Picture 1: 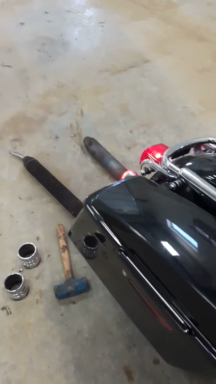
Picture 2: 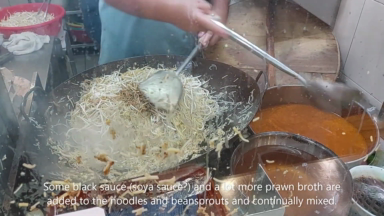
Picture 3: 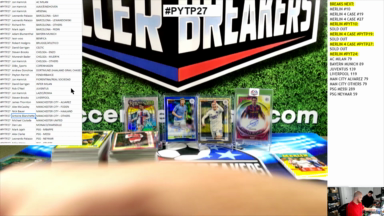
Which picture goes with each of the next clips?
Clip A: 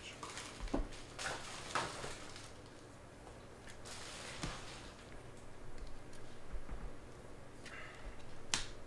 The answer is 3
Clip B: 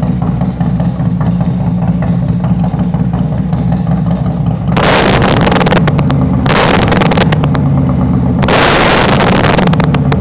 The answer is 1